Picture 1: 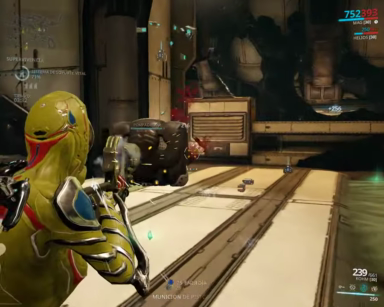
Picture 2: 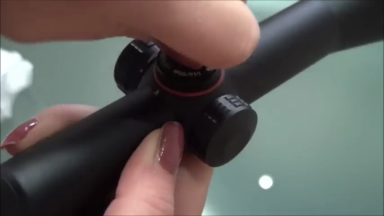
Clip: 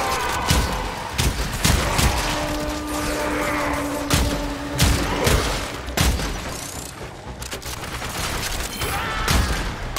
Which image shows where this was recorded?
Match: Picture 1